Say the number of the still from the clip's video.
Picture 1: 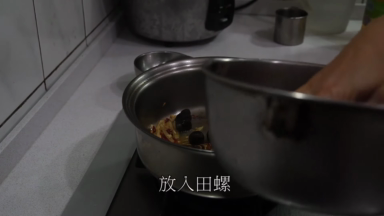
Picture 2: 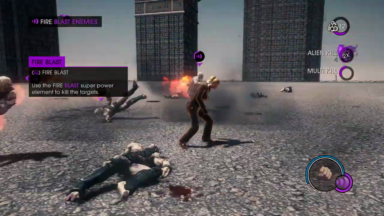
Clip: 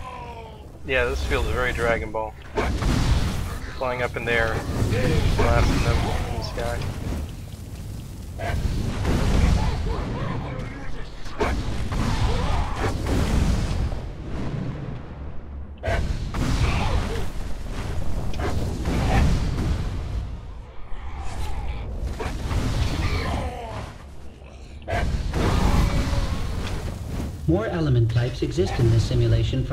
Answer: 2